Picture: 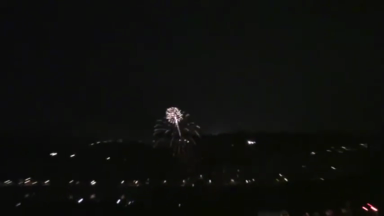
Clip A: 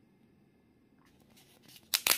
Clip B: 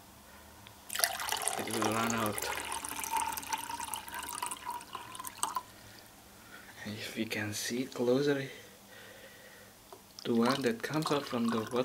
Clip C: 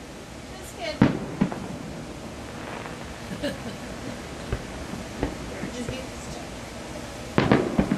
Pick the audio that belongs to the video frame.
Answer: C